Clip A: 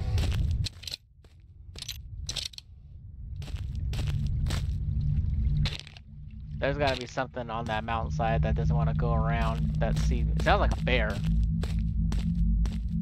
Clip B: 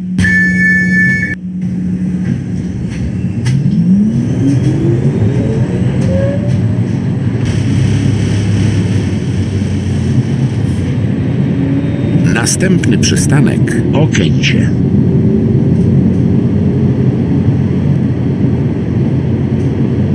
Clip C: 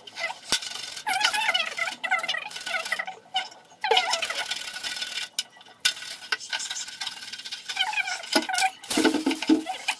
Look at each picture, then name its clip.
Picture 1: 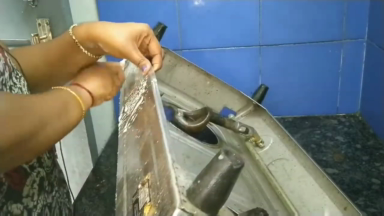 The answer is C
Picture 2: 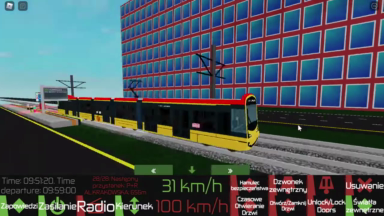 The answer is B